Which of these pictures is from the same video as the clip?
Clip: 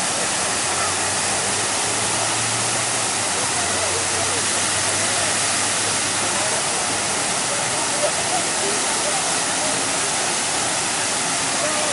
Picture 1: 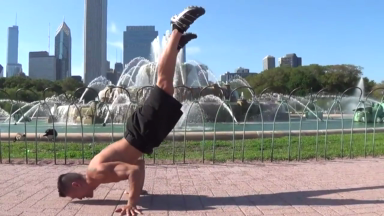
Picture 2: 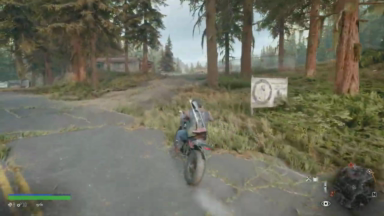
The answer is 1